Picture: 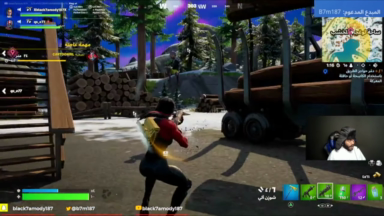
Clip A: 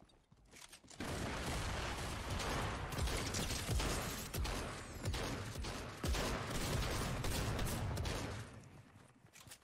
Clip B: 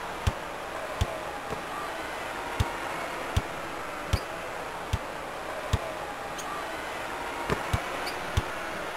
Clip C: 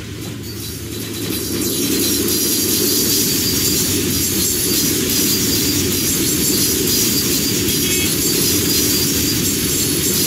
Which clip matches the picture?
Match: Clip A